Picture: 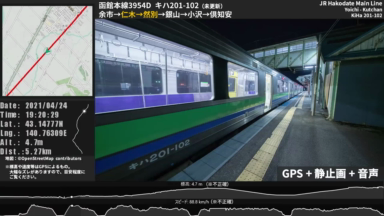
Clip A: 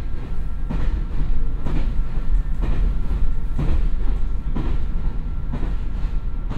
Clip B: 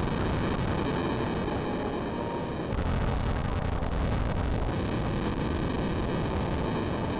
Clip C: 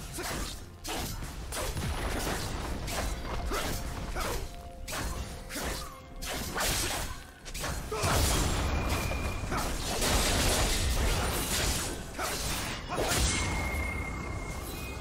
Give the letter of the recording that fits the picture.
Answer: A